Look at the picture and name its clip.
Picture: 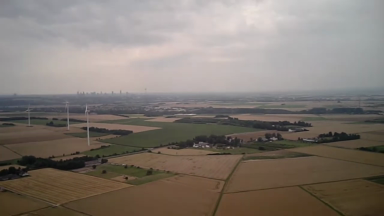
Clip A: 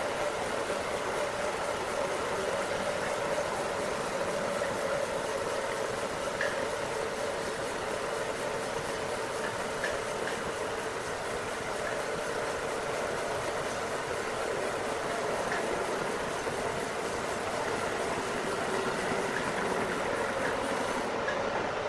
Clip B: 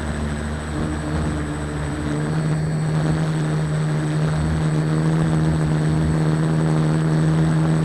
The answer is B